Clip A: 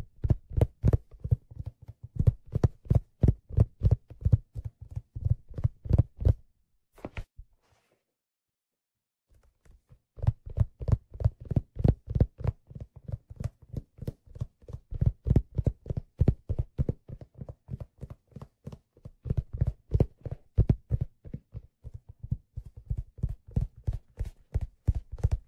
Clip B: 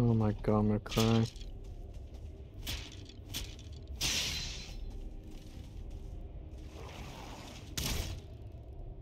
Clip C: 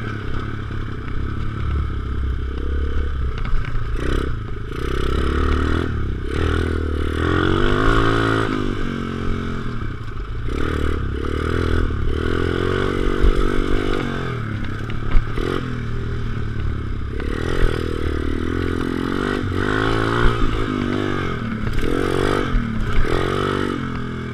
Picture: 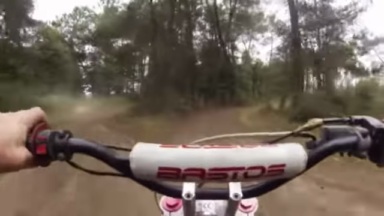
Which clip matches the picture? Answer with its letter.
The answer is C